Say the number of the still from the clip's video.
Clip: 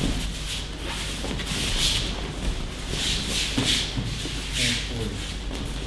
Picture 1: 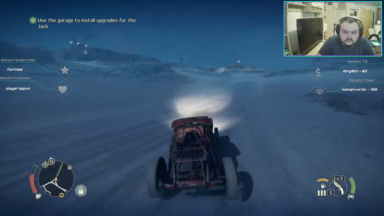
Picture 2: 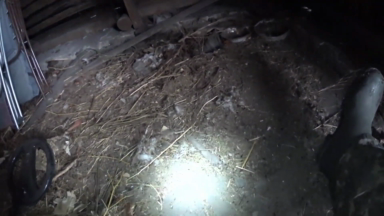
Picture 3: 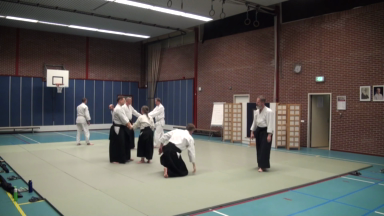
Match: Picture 3